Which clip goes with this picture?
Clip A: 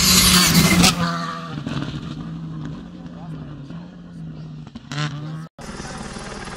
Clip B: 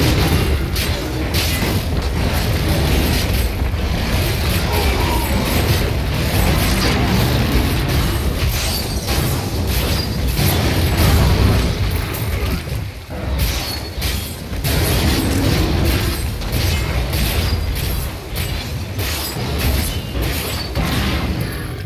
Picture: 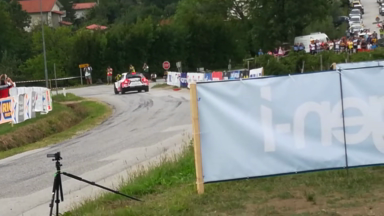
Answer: A